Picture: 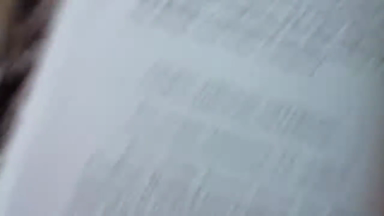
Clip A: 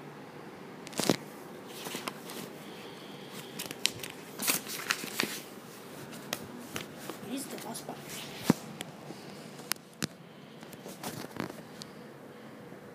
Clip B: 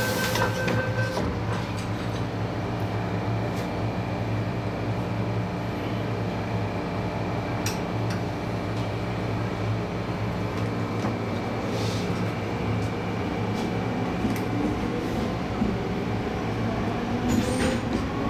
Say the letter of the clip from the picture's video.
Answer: A